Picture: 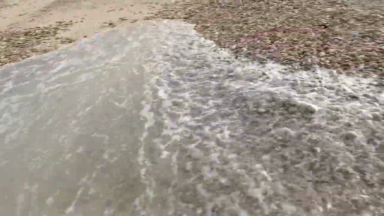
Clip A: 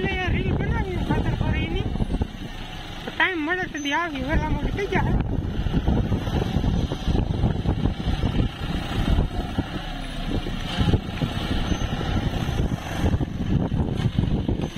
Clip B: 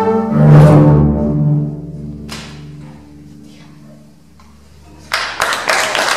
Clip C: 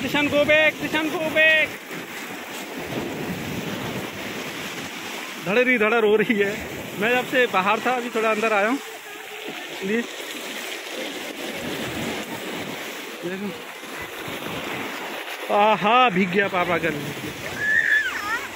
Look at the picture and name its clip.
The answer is C